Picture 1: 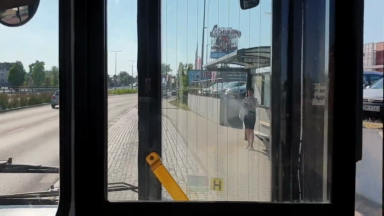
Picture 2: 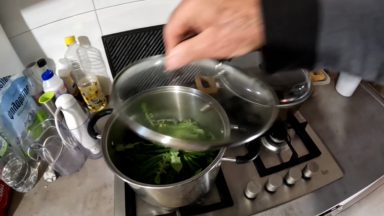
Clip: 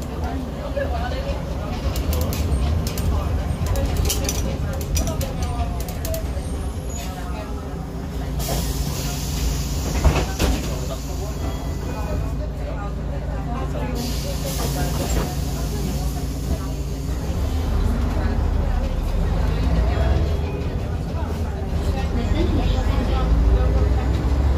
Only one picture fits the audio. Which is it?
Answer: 1